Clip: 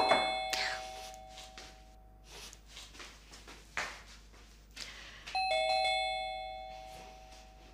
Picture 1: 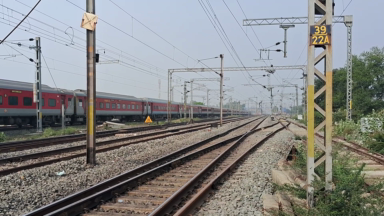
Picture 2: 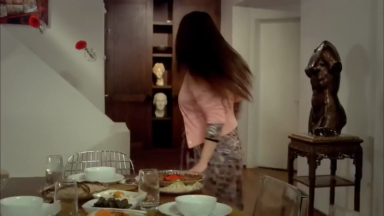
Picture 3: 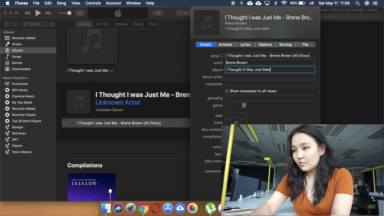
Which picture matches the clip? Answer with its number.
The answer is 2